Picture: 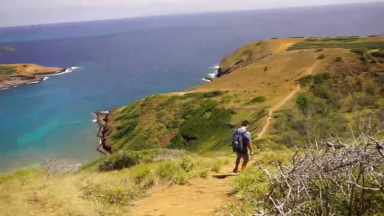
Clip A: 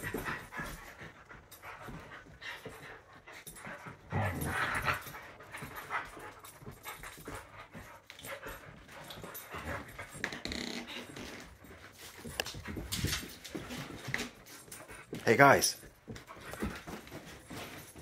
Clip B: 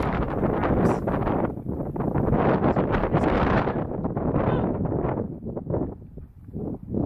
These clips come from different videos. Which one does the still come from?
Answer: B